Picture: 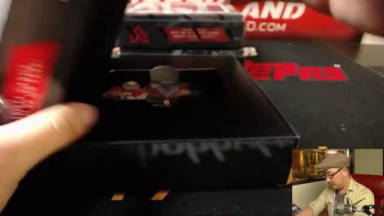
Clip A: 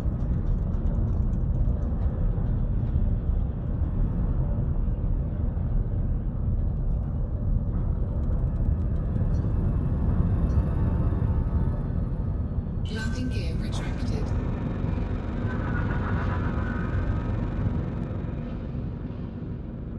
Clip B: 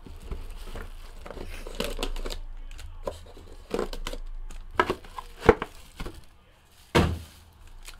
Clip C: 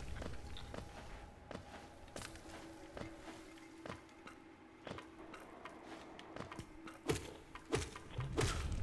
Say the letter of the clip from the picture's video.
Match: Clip B